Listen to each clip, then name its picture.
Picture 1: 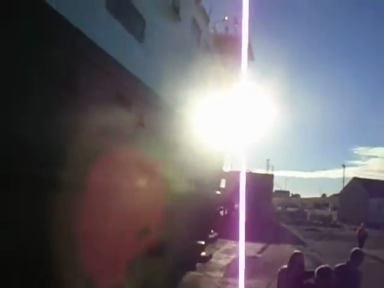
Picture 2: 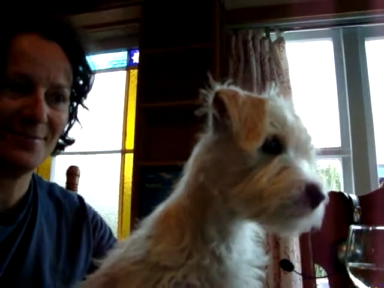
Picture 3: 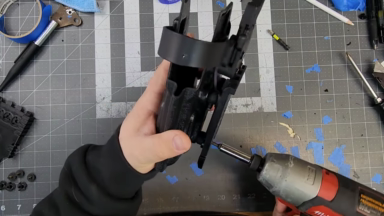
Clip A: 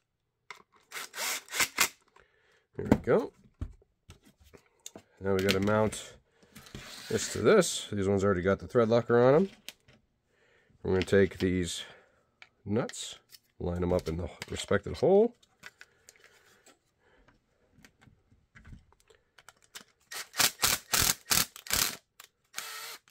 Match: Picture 3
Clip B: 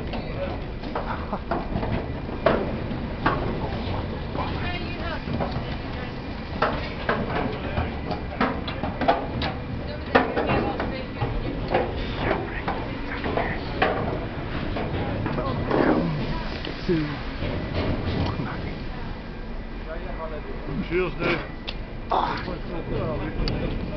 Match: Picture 1